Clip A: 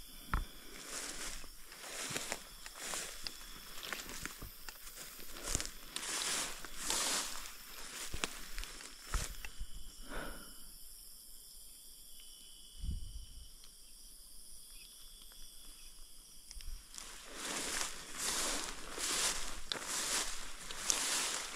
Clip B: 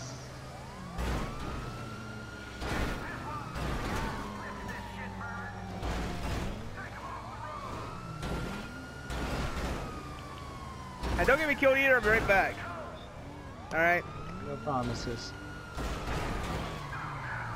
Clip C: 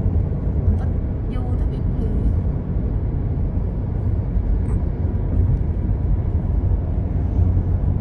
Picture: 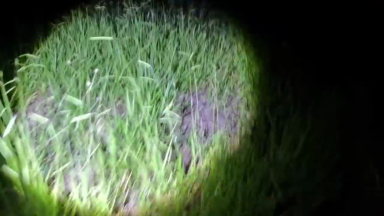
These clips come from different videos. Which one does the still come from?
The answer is A